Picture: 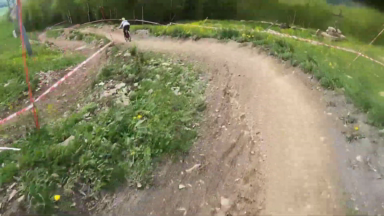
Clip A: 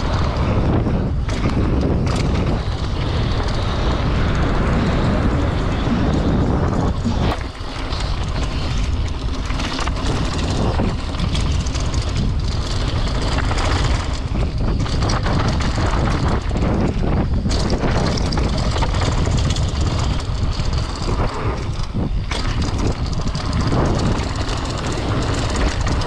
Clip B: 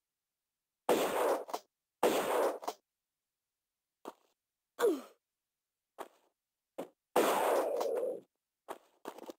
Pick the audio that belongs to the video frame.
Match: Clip A